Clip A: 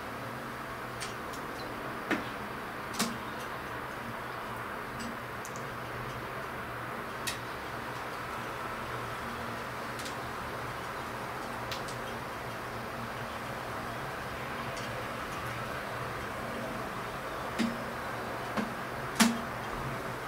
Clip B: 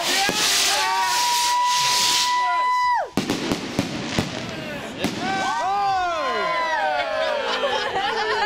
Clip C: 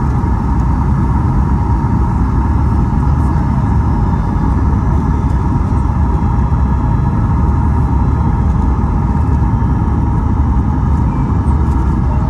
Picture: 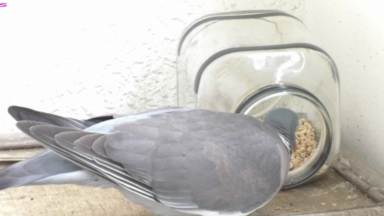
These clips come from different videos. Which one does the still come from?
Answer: A